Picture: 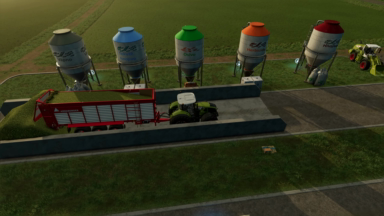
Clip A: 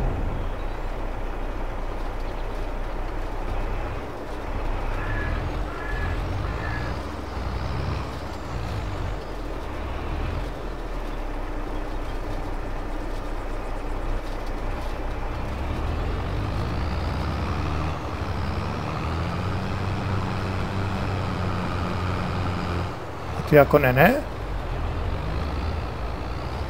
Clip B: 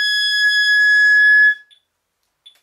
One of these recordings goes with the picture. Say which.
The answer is A